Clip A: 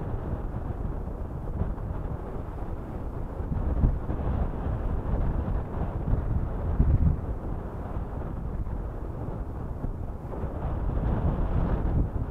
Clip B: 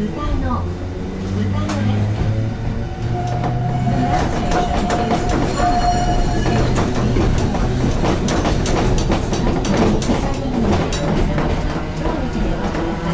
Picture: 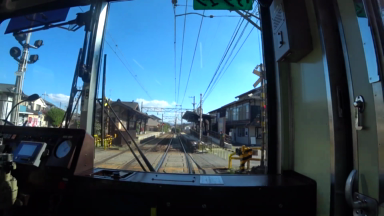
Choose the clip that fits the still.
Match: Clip B